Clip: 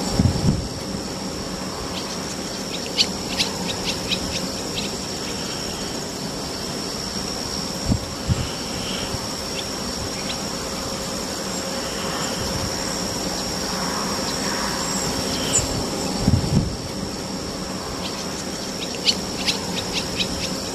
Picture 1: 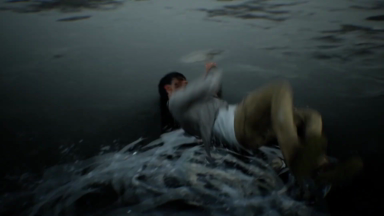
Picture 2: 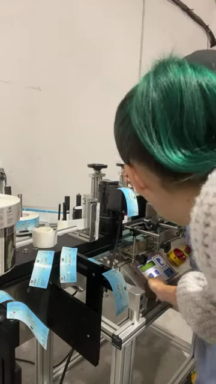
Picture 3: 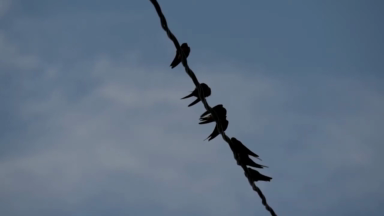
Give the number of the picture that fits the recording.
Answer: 3